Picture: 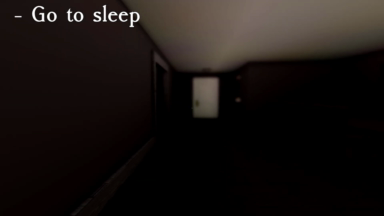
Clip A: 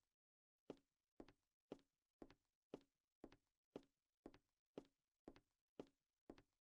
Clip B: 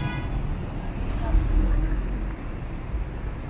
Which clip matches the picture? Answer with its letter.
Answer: A